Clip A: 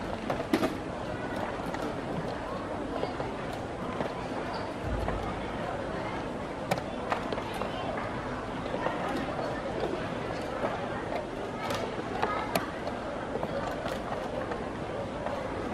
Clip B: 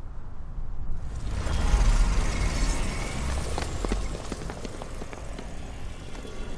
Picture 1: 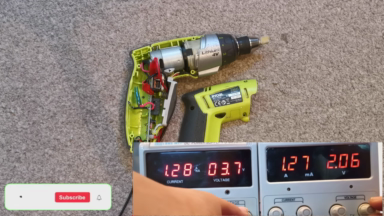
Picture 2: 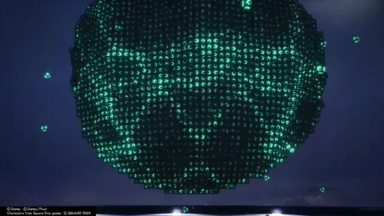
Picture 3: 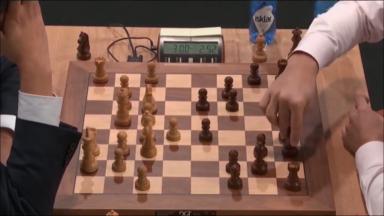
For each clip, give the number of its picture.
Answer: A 3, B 2